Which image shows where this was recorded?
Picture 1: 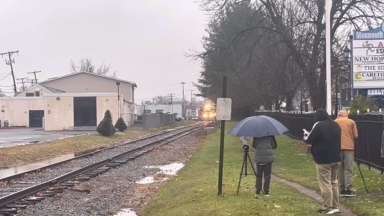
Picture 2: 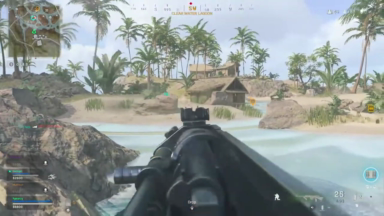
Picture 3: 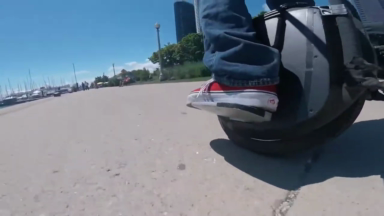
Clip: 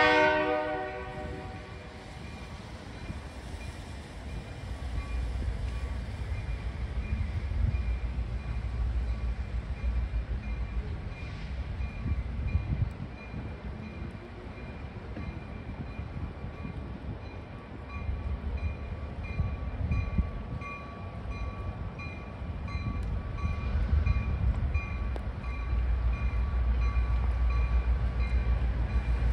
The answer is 1